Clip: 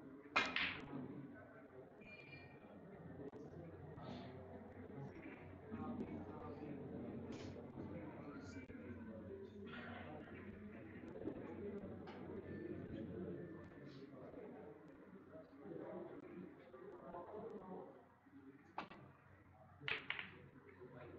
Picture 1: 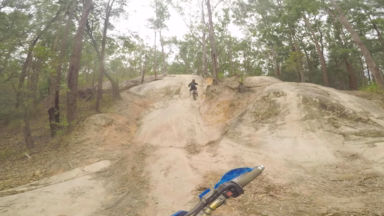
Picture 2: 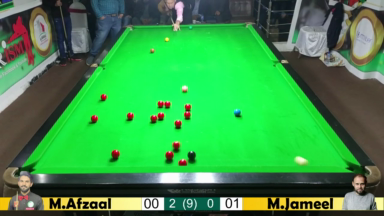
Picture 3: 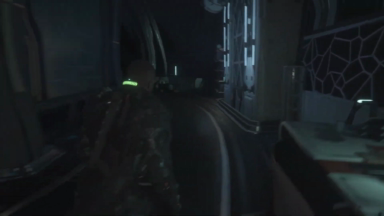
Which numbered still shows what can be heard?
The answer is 2